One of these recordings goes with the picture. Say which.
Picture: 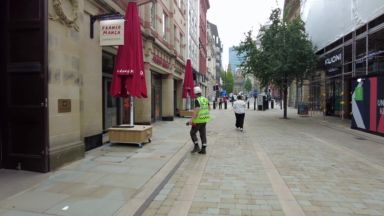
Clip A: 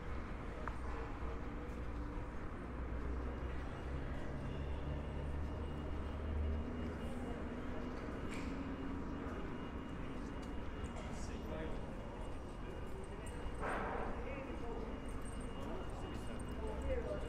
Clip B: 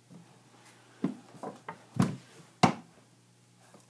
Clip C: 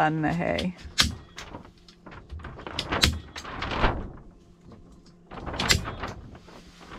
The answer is A